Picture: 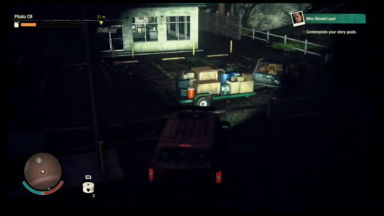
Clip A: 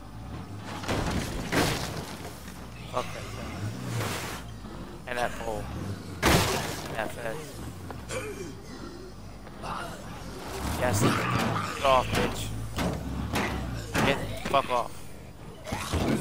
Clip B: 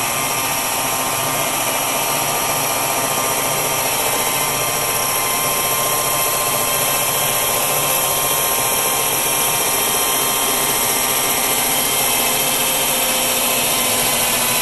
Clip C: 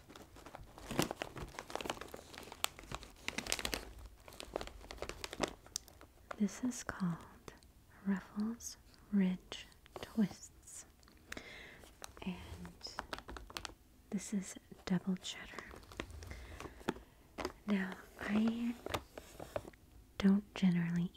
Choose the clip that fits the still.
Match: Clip A